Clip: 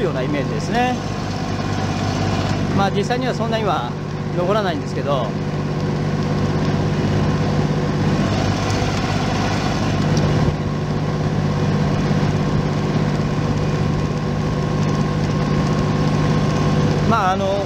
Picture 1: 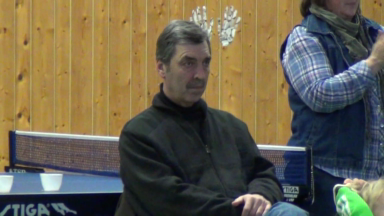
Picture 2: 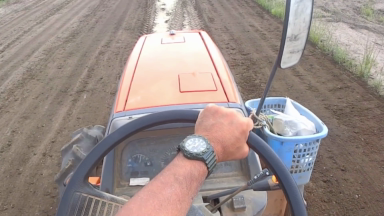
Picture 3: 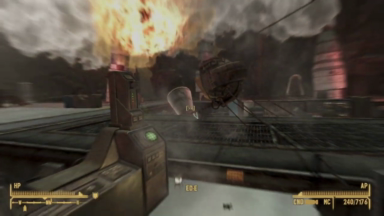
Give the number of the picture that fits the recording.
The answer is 2